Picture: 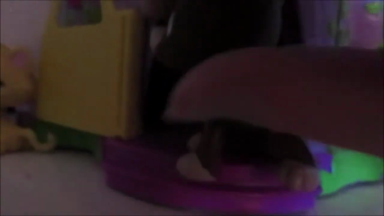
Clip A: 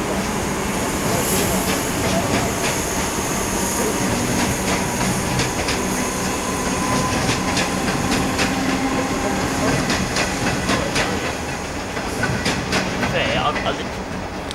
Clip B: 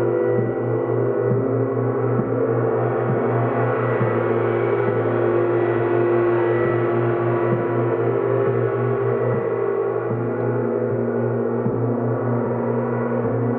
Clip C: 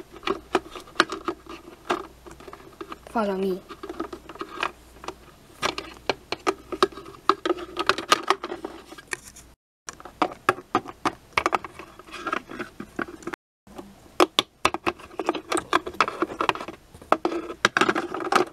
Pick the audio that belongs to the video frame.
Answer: C